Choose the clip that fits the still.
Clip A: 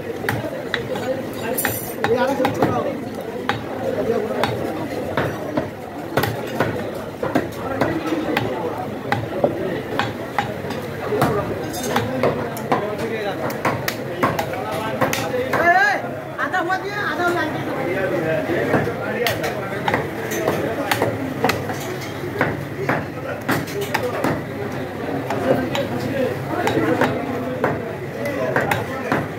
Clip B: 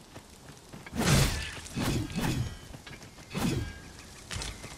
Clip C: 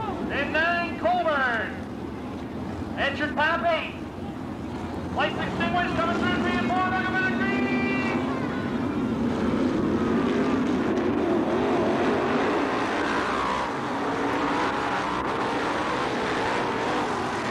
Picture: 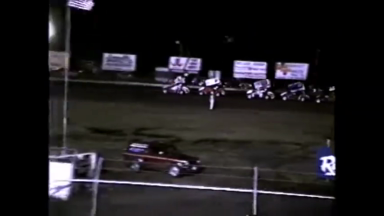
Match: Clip C